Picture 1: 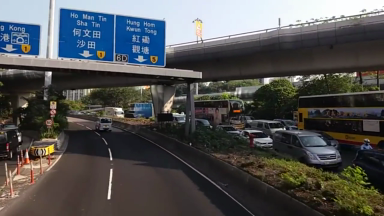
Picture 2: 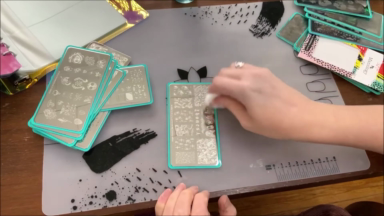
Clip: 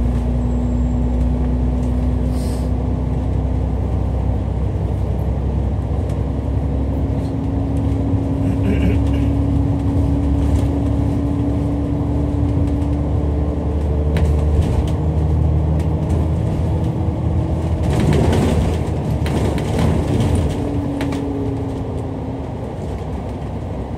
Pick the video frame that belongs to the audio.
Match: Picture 1